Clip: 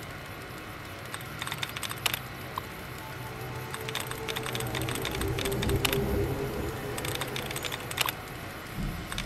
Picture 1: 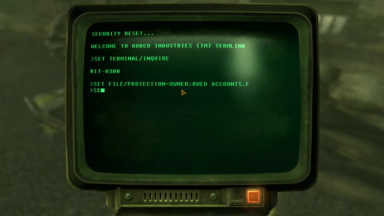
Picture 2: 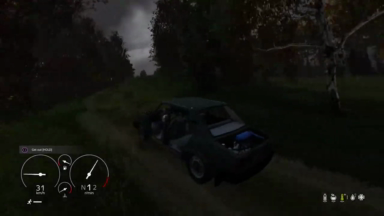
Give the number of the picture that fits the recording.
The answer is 1